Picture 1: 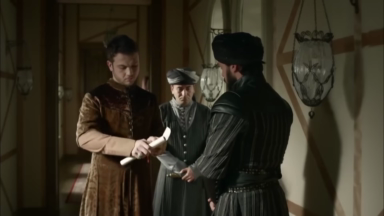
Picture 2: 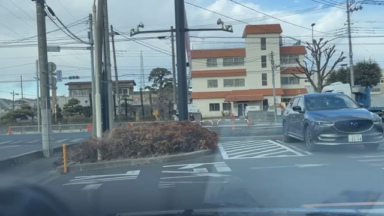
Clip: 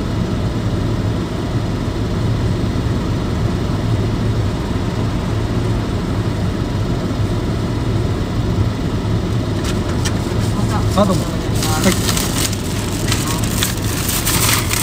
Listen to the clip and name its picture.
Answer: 2